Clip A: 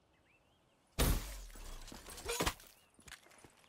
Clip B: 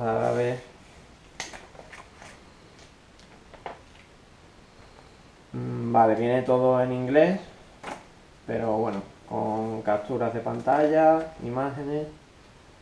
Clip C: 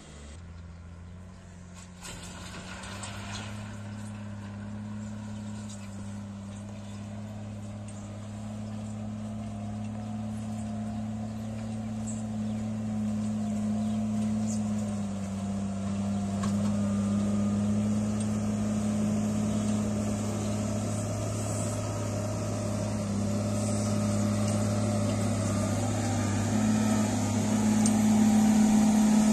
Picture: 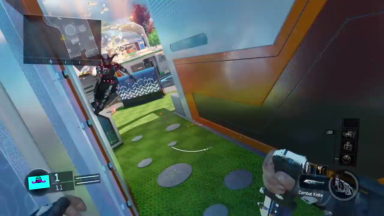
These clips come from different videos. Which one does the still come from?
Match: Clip A